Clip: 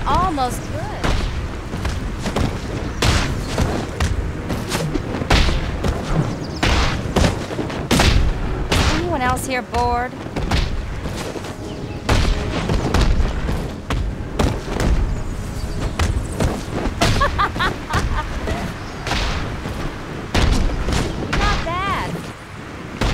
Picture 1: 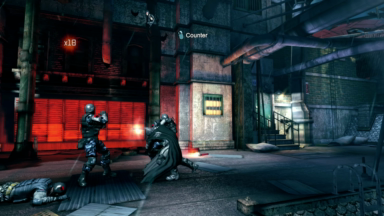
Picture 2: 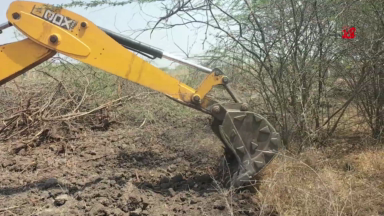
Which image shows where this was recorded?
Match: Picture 1